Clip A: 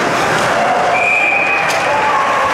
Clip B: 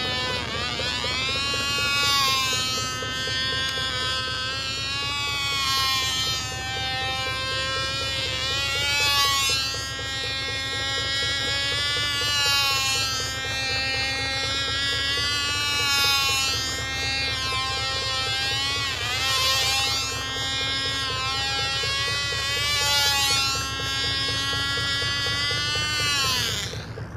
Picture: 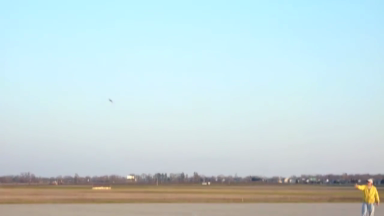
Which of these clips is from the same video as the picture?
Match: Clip B